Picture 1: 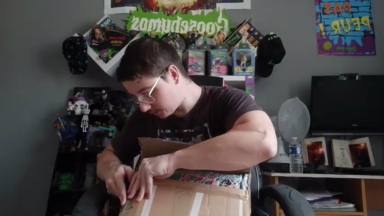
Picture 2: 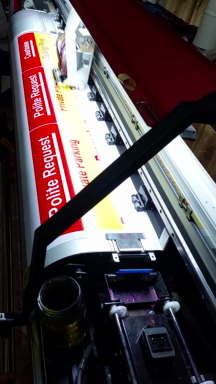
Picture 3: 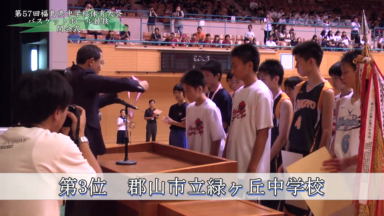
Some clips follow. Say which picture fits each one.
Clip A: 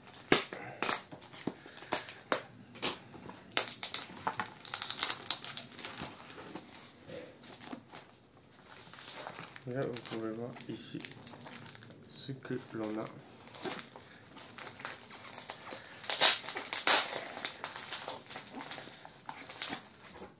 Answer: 1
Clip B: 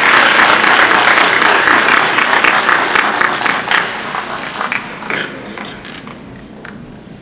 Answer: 3